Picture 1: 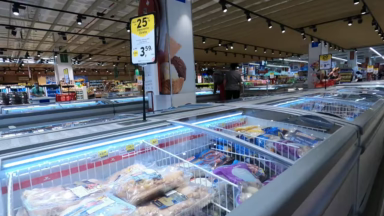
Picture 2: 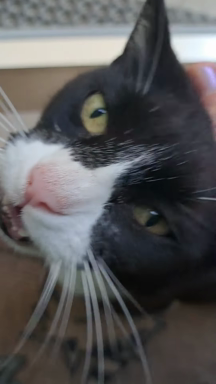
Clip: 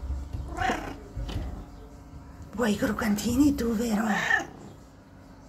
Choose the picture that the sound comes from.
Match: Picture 2